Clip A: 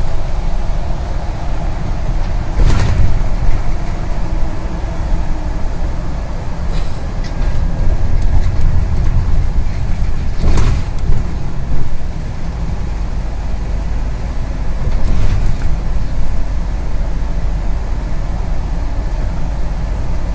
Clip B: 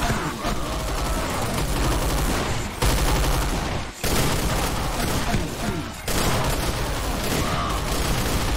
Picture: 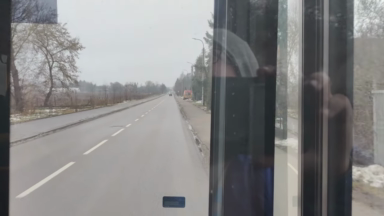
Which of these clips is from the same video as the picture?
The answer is A